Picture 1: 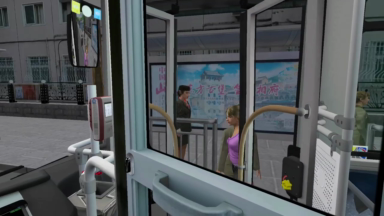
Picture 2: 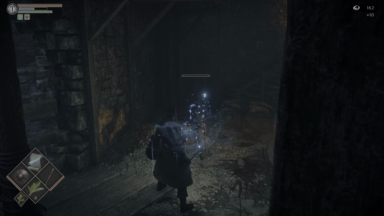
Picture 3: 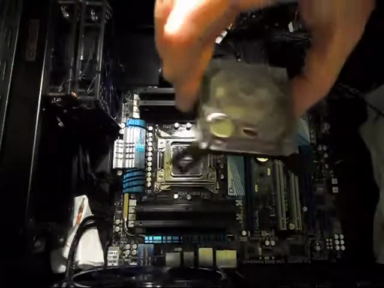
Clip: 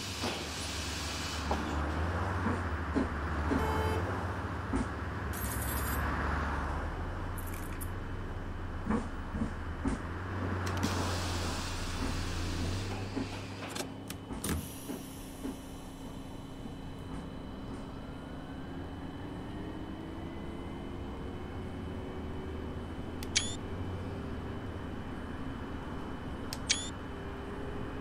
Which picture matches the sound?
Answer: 1